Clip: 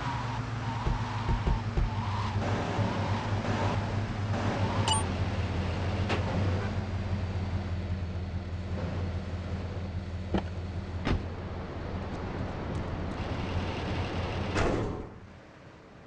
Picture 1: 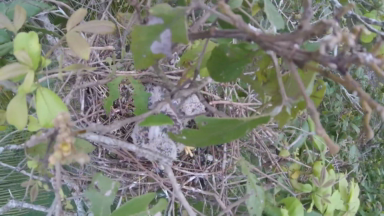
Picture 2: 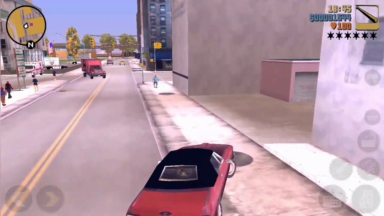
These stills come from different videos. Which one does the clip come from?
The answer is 2